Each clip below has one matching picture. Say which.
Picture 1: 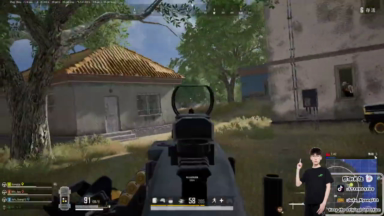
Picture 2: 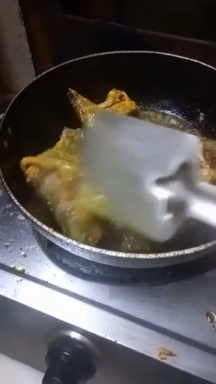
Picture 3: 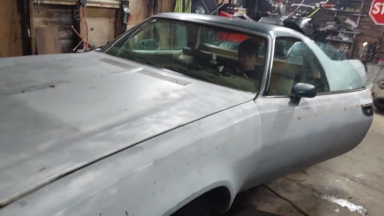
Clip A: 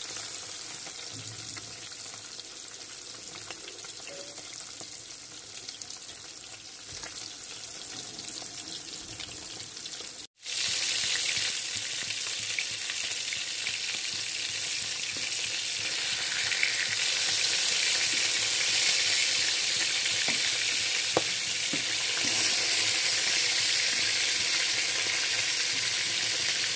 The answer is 2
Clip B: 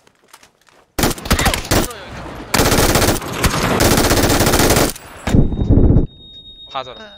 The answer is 1